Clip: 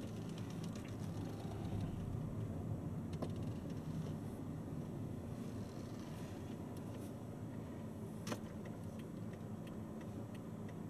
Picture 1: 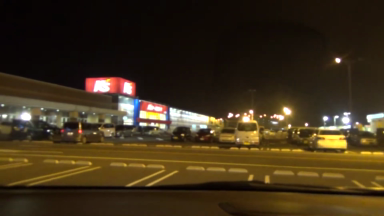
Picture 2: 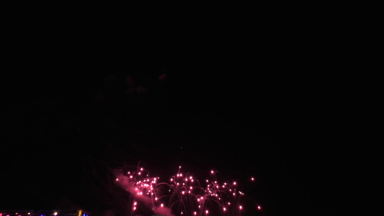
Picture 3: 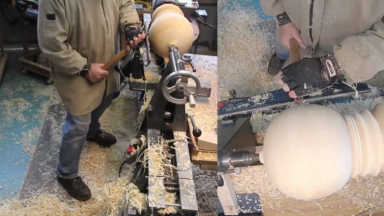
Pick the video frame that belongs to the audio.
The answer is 1